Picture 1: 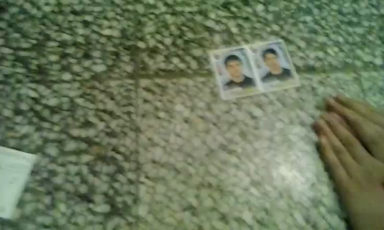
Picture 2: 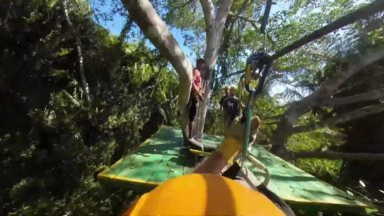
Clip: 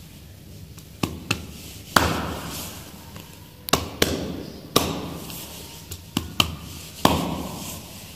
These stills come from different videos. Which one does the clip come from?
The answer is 1